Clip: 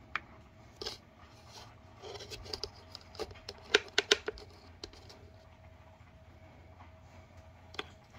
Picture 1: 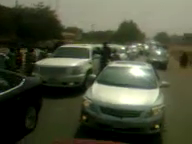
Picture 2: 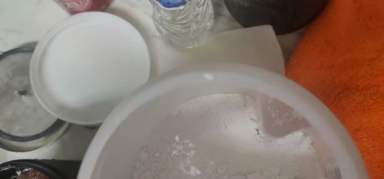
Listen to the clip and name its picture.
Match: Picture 2